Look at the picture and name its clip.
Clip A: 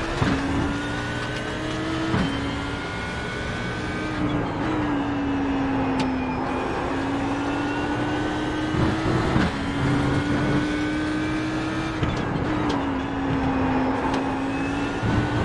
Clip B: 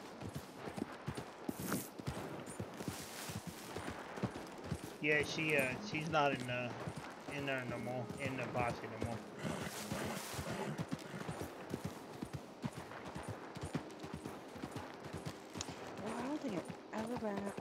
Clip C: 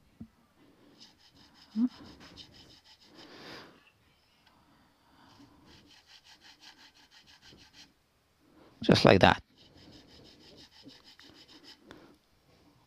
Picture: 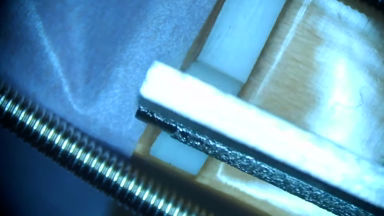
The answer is C